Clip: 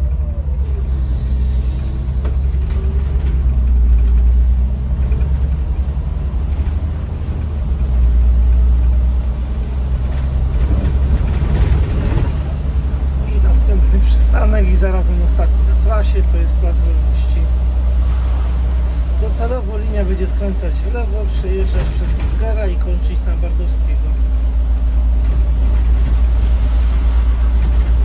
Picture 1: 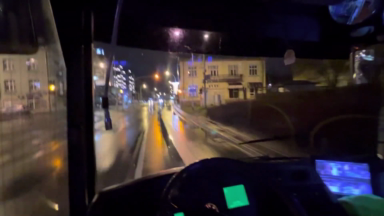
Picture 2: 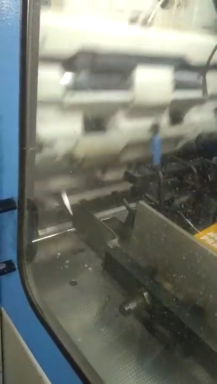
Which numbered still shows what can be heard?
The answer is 1